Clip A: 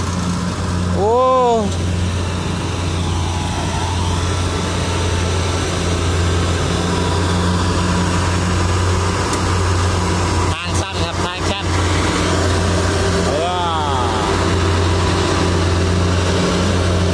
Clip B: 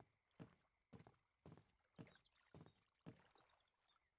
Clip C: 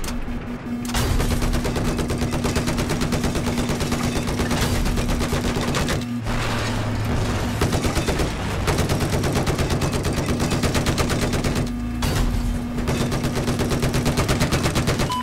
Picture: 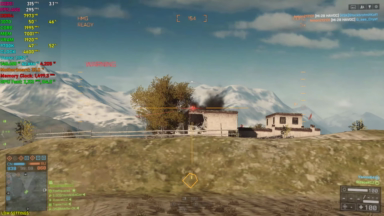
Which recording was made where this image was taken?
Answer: C